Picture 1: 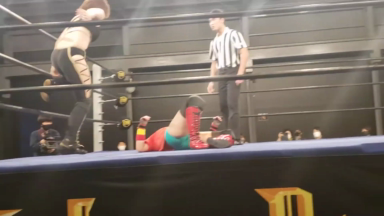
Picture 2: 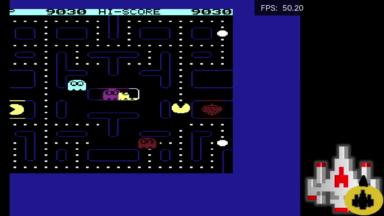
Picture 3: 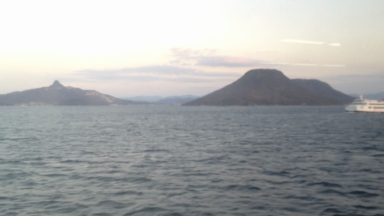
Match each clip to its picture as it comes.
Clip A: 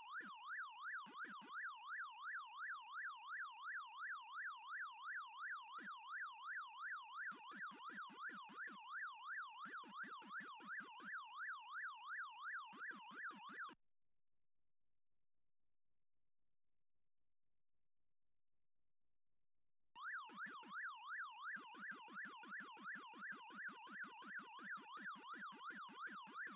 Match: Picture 2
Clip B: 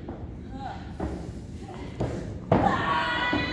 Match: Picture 1